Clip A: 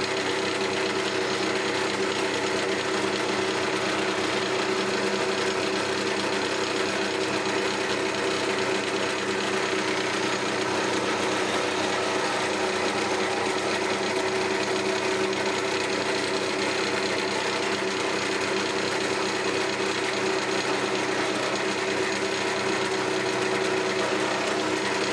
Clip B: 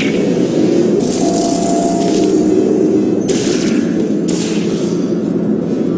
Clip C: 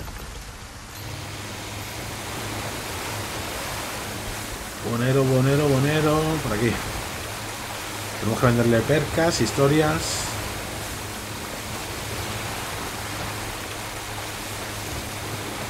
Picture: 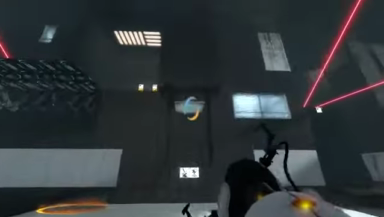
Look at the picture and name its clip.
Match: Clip B